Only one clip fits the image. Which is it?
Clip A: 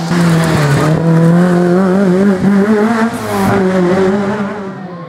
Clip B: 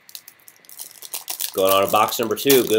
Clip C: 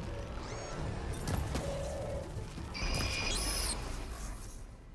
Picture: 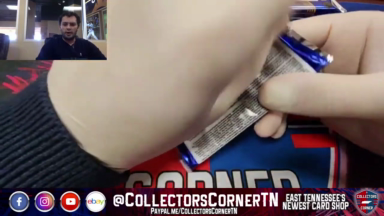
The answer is B